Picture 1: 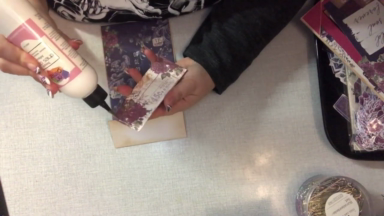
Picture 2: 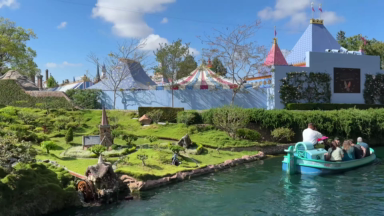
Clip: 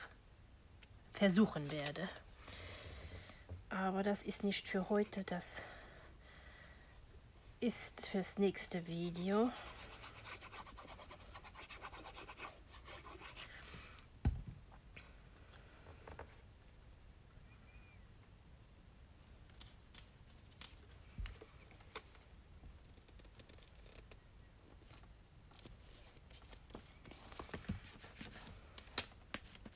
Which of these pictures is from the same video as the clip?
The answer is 1